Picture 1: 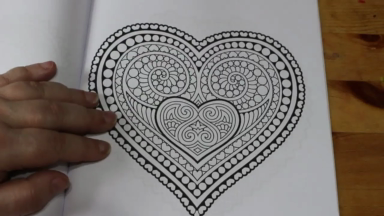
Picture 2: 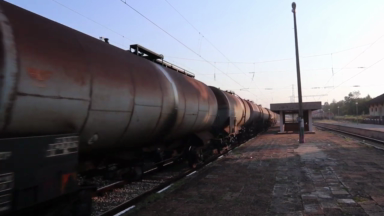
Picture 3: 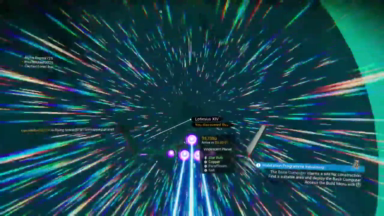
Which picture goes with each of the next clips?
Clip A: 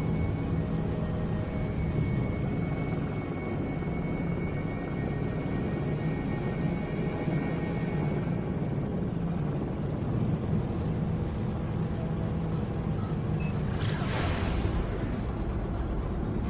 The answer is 3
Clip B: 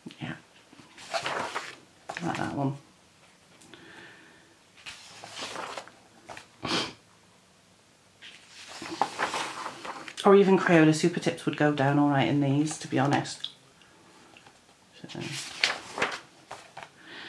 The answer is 1